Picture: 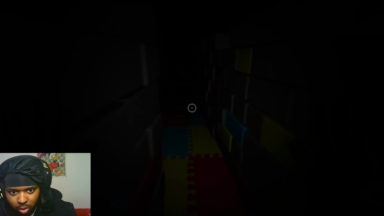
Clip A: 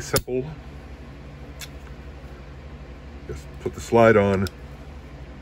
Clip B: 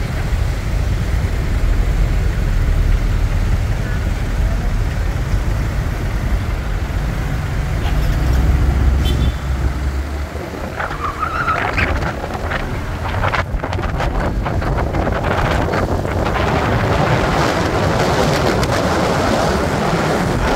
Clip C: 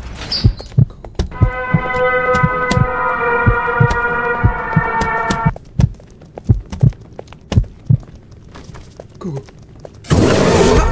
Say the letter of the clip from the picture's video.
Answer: C